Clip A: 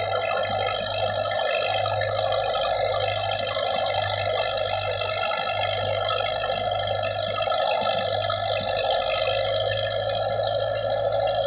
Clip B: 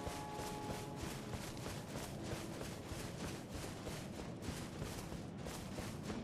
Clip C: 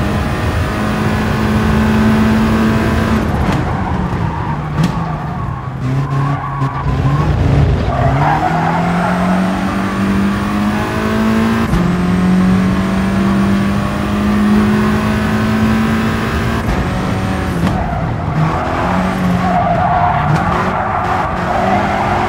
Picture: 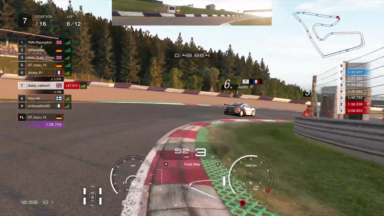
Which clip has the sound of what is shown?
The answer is C